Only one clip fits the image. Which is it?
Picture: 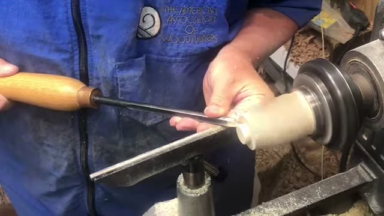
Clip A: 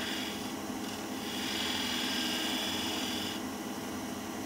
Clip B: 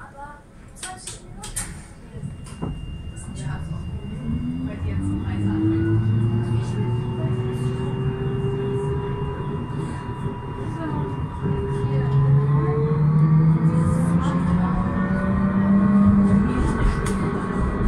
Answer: A